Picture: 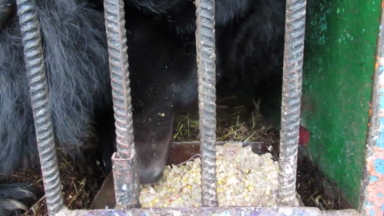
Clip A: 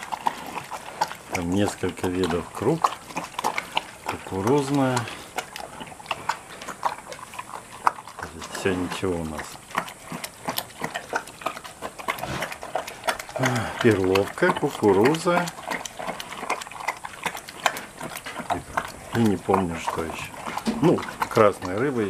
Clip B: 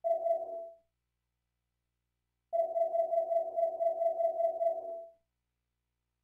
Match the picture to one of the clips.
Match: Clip A